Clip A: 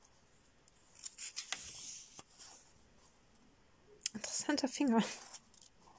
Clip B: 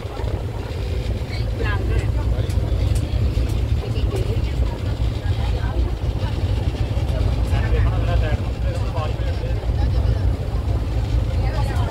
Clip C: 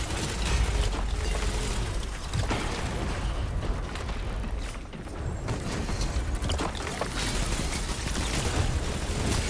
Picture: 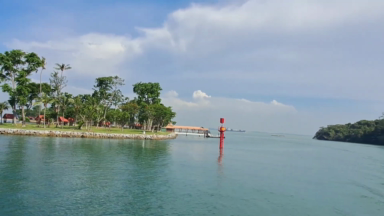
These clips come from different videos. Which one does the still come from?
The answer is B